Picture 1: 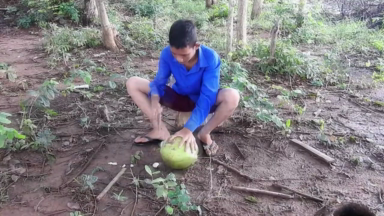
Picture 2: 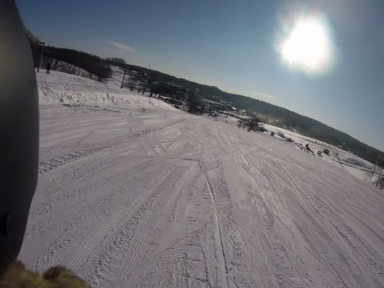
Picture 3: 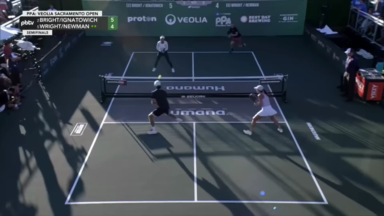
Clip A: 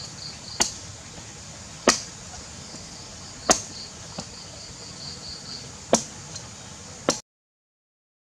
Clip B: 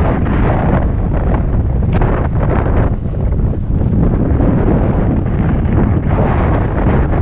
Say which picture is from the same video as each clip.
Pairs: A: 1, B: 2